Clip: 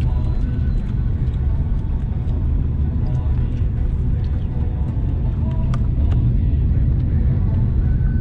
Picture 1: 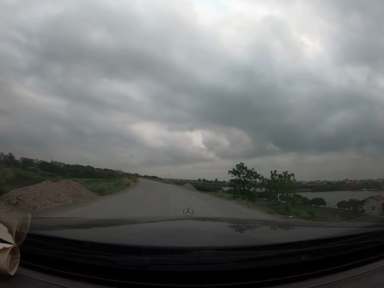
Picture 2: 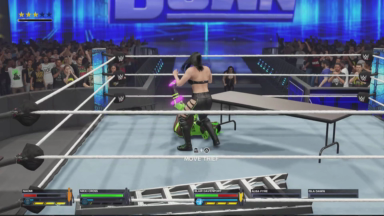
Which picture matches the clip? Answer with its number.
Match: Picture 1